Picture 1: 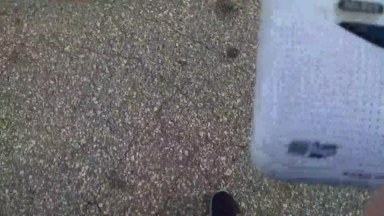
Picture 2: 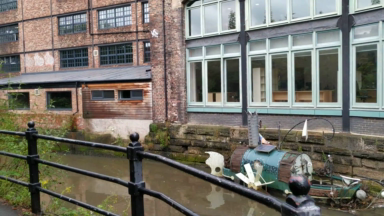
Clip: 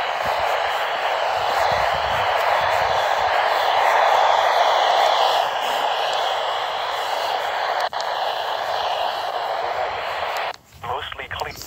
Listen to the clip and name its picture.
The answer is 1